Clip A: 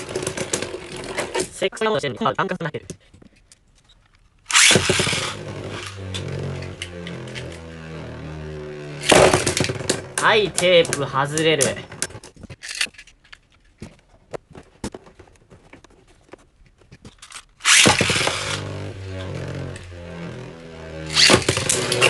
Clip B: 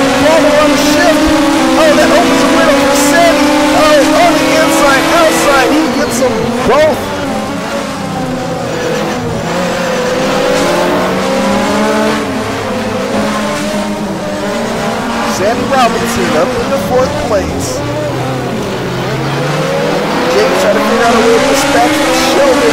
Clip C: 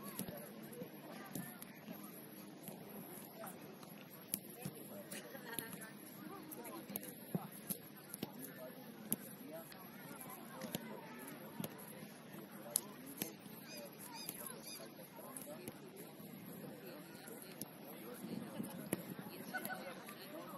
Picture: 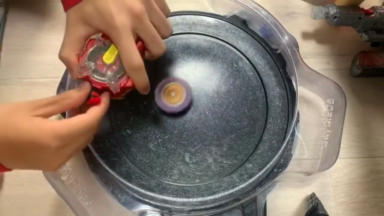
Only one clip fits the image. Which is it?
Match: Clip A